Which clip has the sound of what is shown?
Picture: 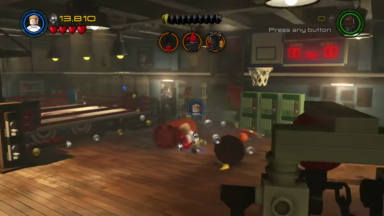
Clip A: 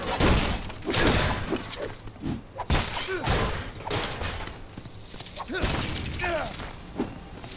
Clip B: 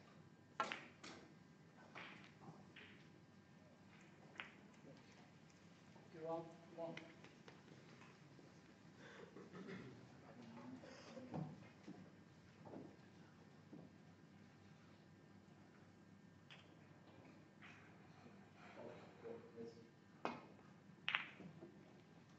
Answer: A